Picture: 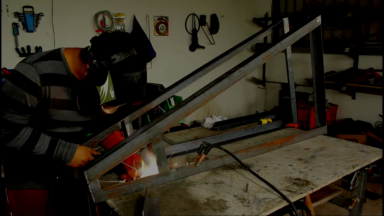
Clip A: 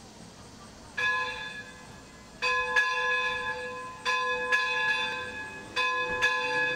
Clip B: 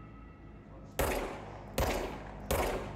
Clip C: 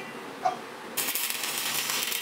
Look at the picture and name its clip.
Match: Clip C